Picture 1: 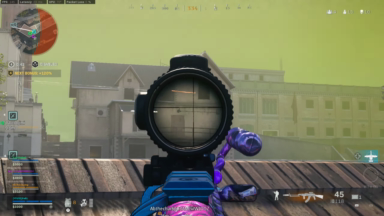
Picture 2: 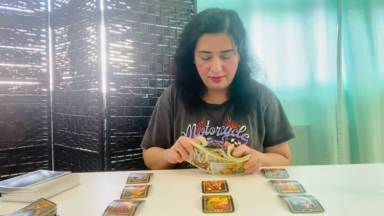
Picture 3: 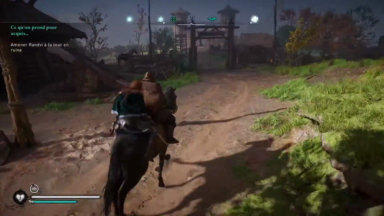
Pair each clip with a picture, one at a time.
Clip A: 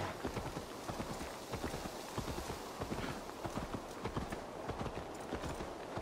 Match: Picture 3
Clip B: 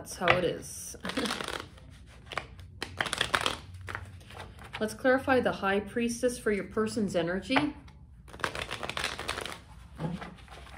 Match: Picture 2